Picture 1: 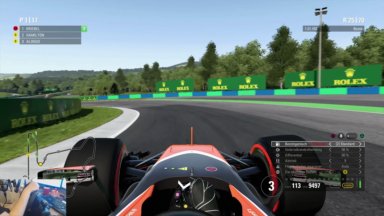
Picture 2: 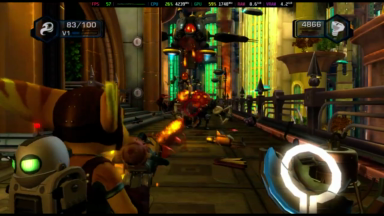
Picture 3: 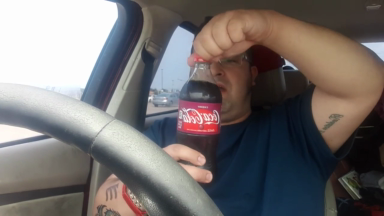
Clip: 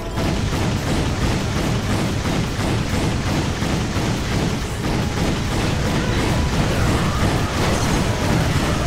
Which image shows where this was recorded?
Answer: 2